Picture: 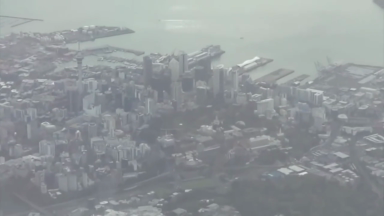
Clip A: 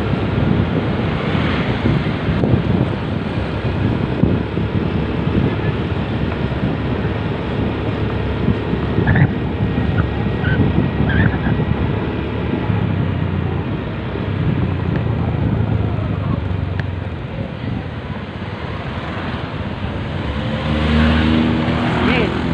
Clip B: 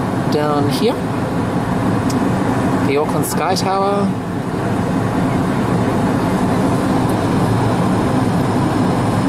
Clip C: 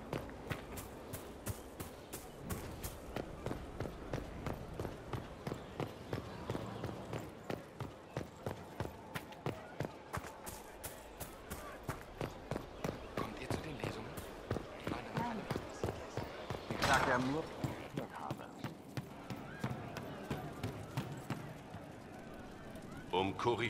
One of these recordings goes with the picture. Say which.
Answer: B